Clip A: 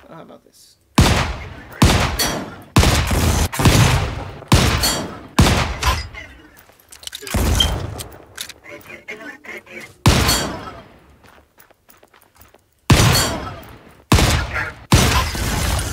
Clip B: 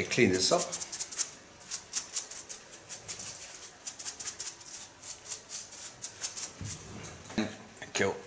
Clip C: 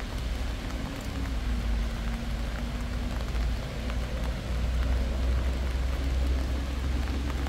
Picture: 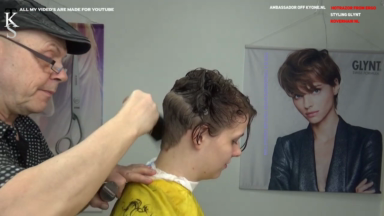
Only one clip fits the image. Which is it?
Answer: B